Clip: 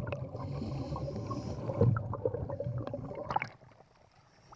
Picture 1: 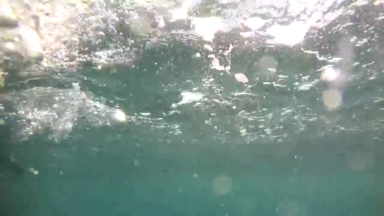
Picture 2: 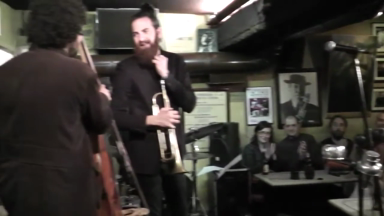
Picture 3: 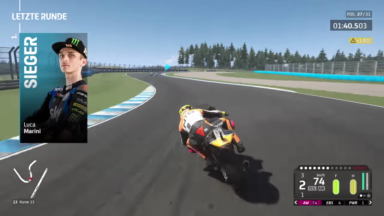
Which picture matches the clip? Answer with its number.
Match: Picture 1